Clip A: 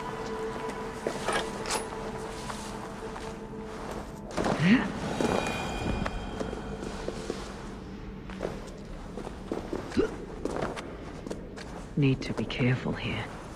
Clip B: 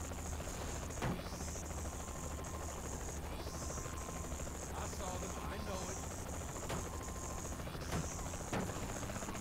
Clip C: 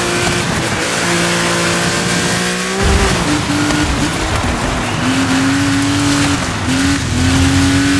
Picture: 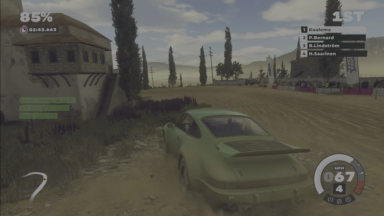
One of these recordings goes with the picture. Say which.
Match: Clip C